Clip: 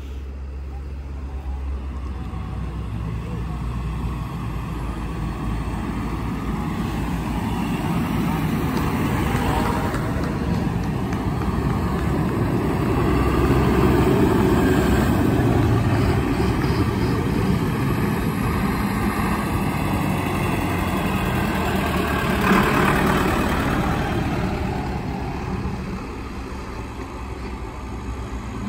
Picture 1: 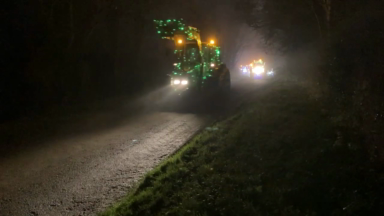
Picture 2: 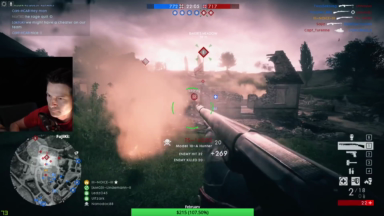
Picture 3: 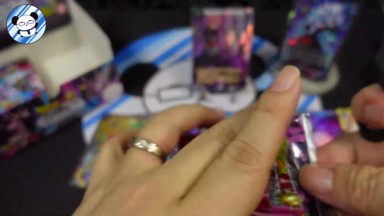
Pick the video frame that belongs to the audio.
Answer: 1